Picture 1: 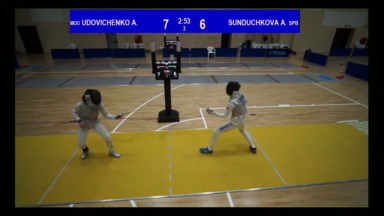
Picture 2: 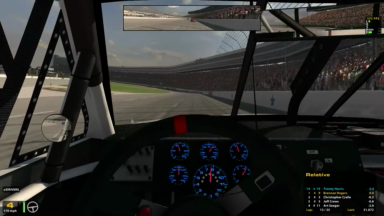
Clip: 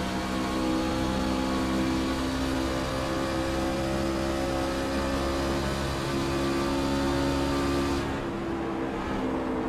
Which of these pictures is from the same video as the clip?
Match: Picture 2